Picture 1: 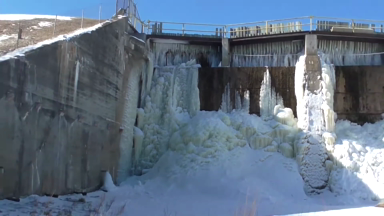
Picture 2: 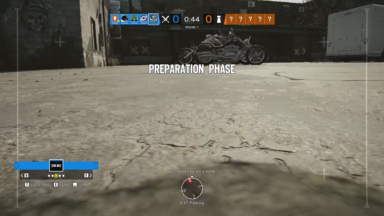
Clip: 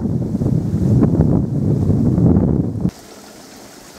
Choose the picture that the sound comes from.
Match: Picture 1